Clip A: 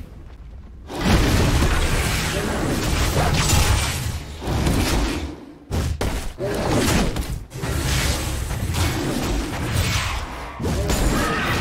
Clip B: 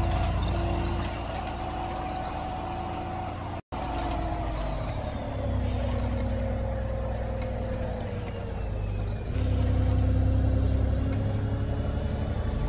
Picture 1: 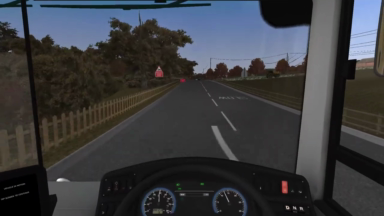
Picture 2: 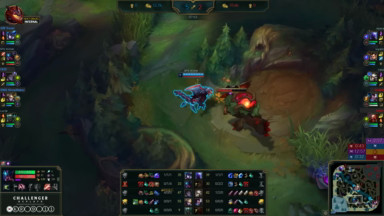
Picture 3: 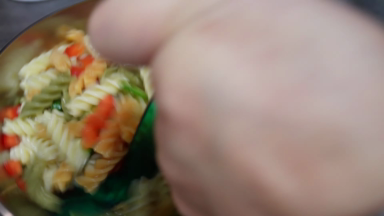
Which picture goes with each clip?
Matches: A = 2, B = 1